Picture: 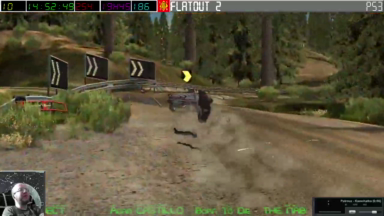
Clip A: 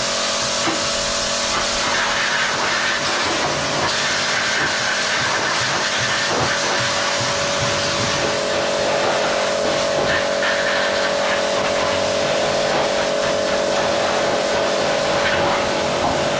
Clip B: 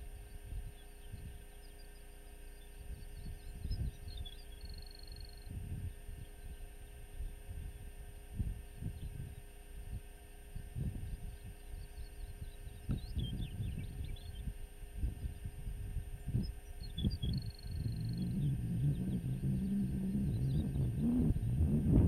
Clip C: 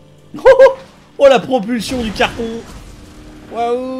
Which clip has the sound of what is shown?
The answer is C